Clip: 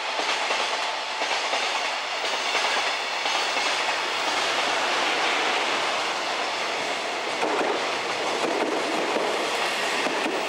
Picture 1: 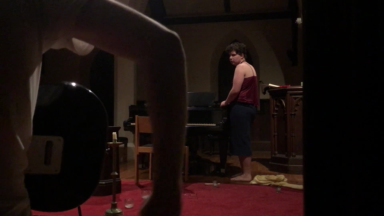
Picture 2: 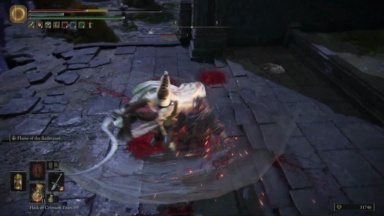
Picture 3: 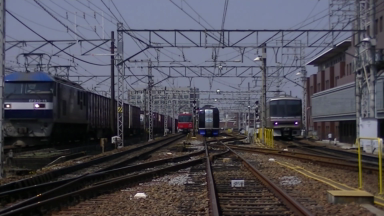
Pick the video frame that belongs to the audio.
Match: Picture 3